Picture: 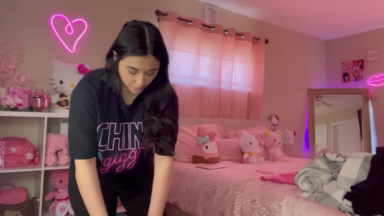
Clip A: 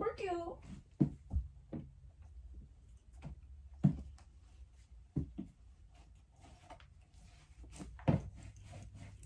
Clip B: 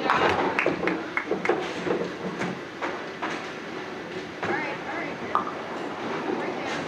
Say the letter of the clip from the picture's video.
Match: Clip A